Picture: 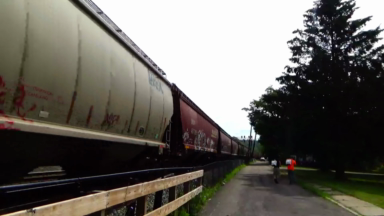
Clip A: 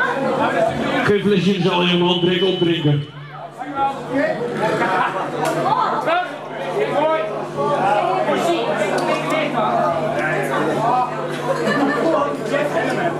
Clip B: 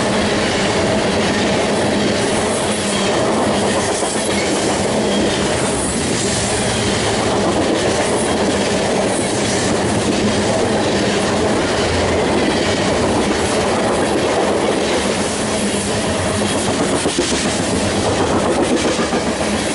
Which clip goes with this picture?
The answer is B